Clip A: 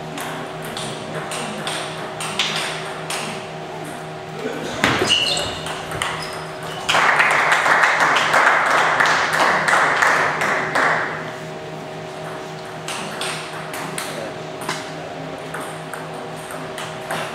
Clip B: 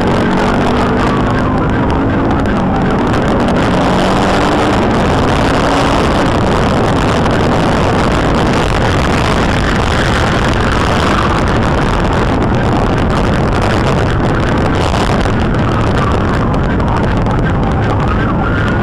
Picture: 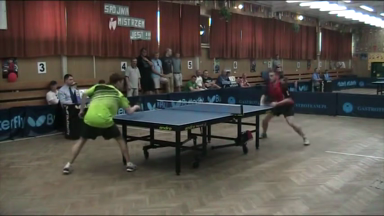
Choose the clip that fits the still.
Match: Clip A